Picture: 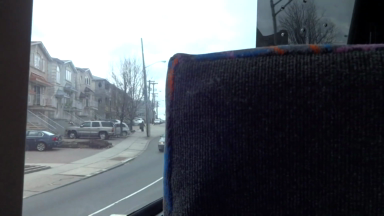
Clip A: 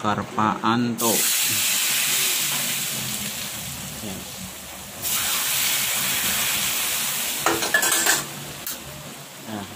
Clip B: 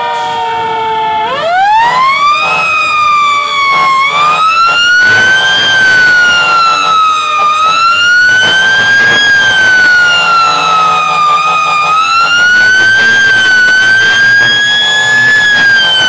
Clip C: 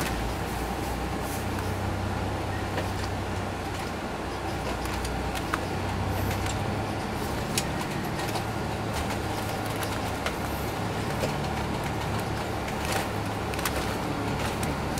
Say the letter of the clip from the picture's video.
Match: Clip C